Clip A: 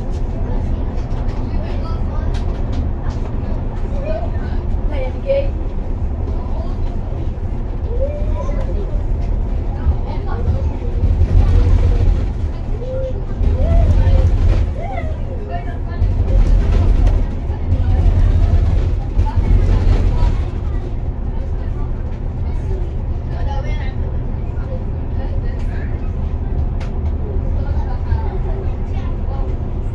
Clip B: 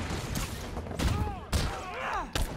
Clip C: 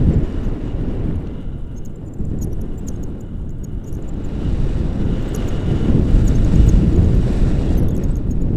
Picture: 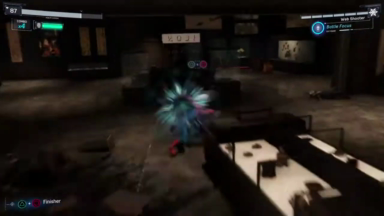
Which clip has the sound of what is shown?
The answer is B